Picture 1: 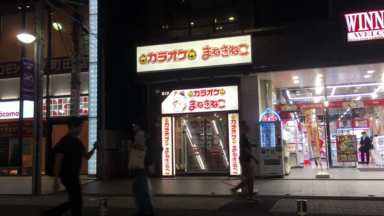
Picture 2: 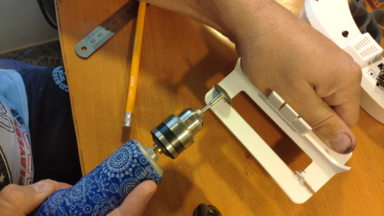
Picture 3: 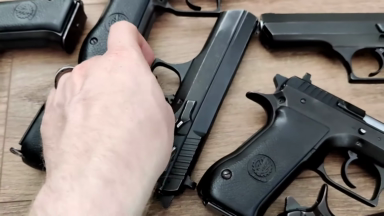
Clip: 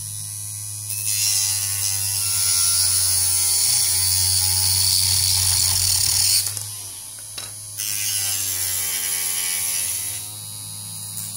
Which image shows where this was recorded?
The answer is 2